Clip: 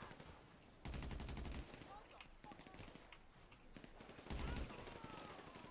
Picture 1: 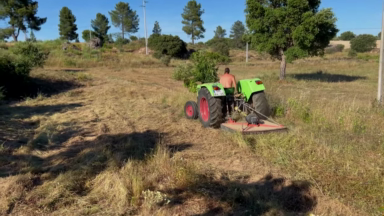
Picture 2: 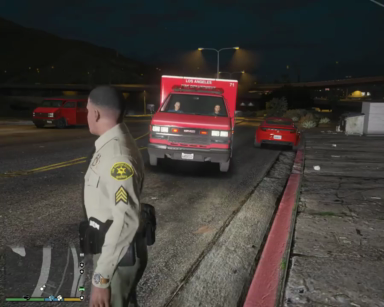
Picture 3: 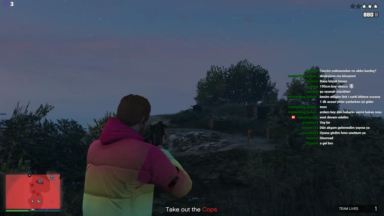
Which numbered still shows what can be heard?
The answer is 3